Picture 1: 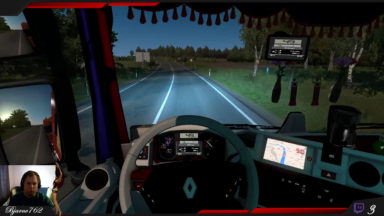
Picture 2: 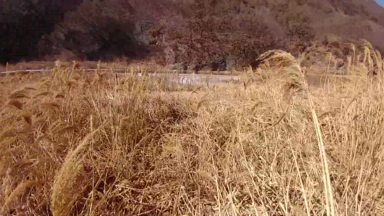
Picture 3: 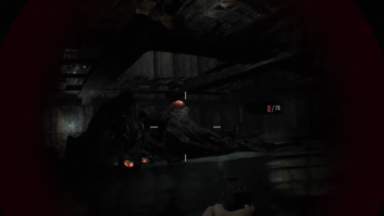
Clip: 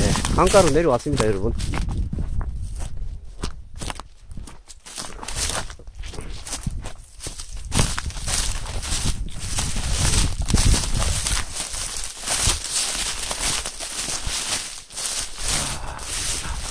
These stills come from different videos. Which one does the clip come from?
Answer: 2